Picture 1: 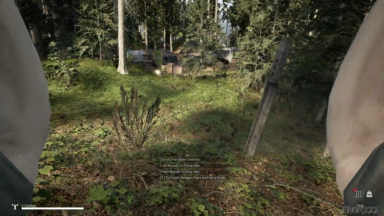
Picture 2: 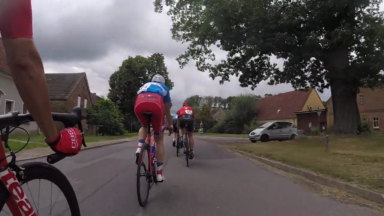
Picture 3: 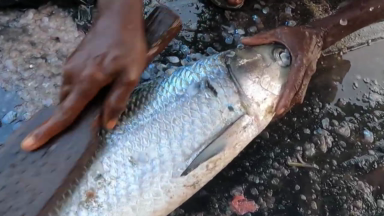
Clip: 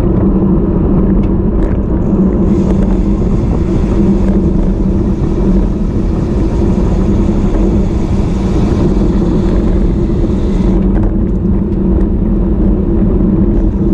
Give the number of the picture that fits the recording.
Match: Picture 2